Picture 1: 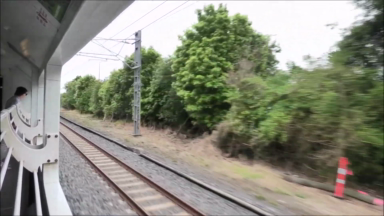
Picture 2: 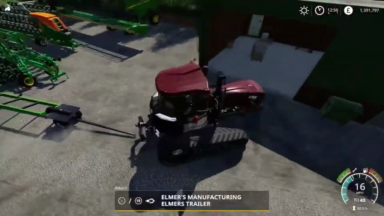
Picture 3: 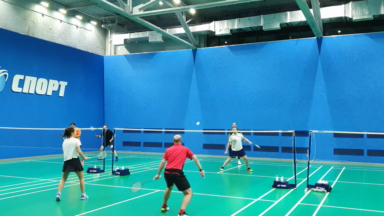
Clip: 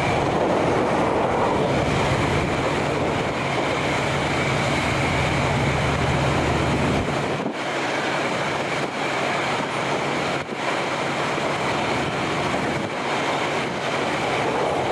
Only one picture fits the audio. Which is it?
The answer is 1